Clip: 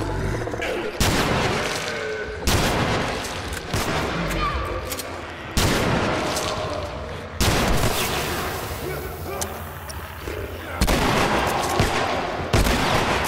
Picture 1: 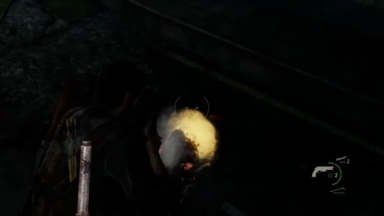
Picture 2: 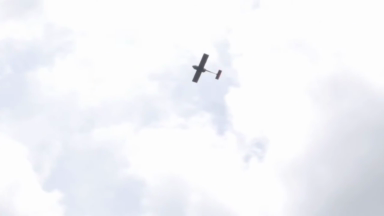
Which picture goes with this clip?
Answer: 1